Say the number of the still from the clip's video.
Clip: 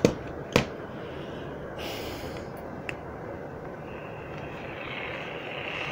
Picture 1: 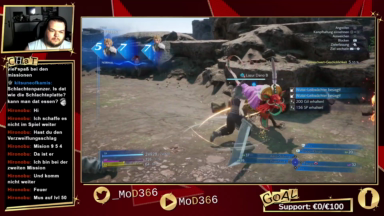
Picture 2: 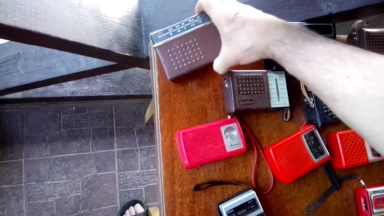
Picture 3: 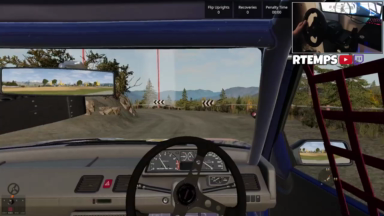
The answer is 2